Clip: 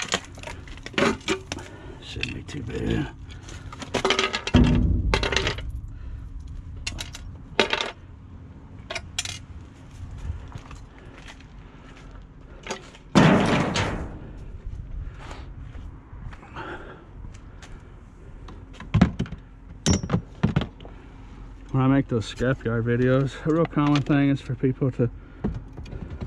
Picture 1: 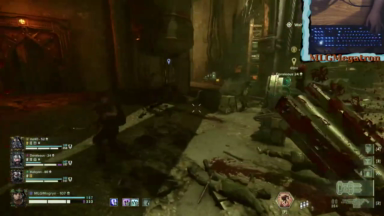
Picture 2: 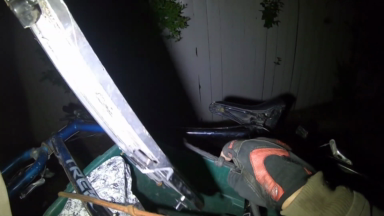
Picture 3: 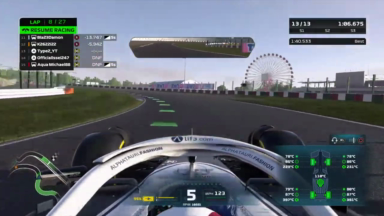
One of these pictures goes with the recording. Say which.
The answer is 2